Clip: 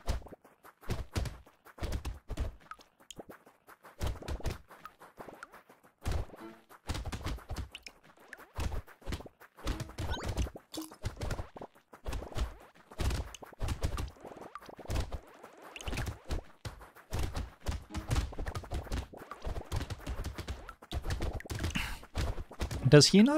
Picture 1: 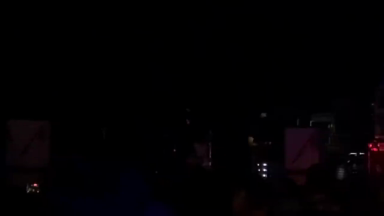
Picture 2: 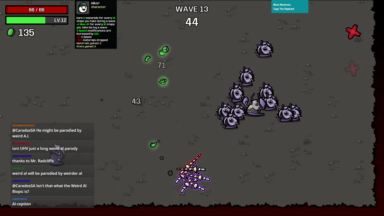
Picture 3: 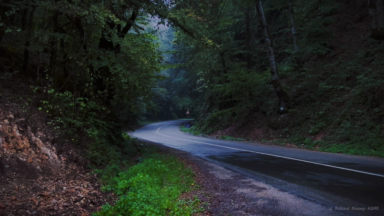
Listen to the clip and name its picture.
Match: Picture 2